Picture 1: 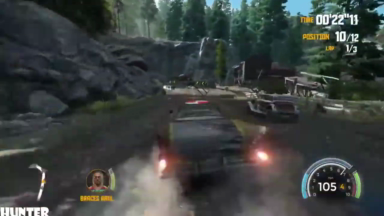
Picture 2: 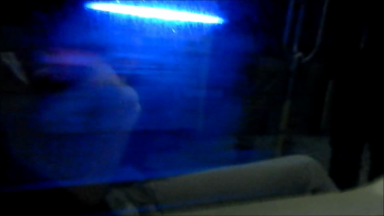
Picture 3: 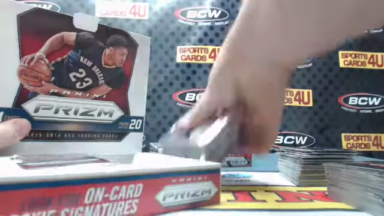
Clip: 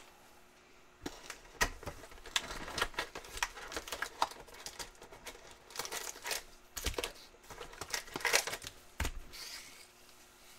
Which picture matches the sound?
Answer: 3